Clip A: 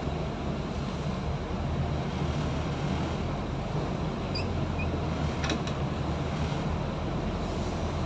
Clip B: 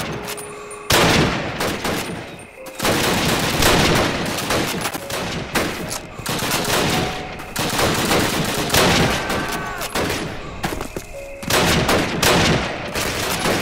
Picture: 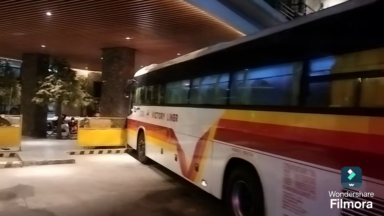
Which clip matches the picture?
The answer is A